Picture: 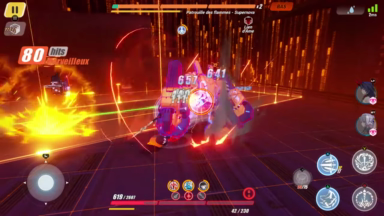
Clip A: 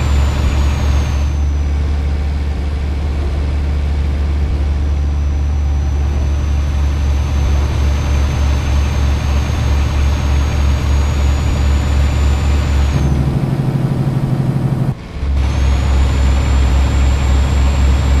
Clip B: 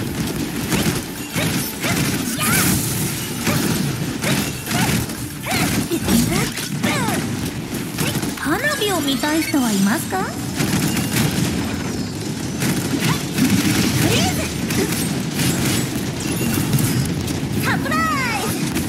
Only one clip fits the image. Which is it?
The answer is B